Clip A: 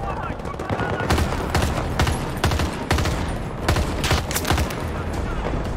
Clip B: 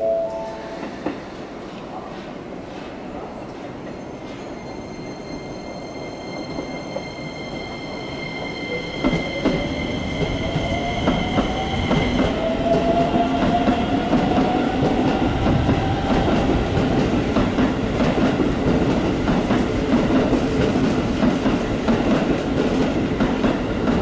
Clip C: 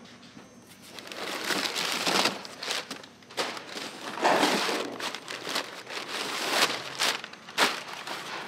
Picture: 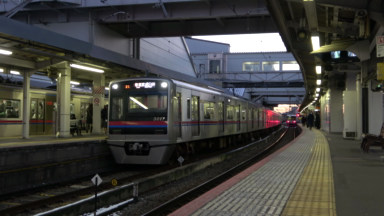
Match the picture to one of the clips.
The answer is B